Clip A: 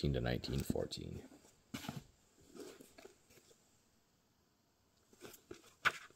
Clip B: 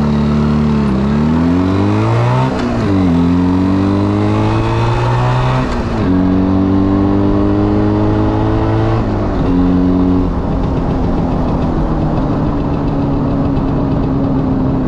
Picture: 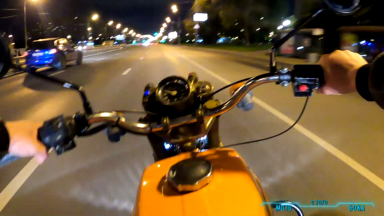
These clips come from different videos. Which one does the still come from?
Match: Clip B